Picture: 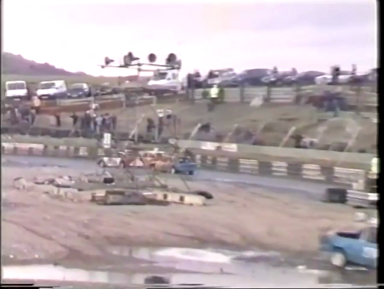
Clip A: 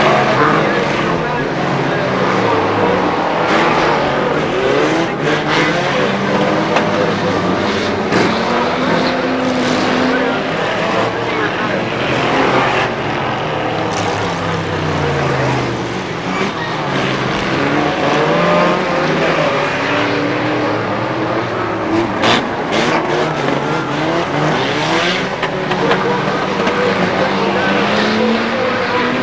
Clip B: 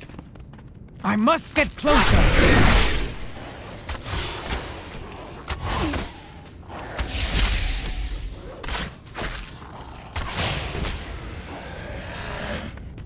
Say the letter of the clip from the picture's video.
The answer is A